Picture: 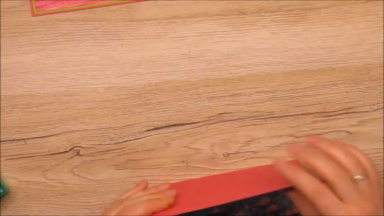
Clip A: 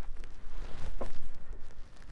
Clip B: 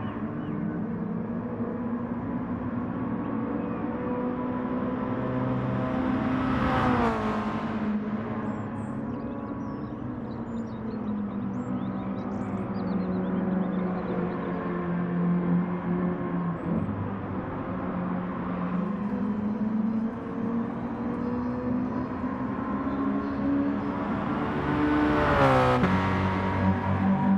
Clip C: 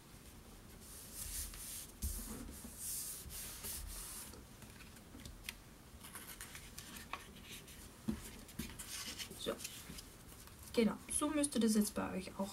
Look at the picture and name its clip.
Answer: C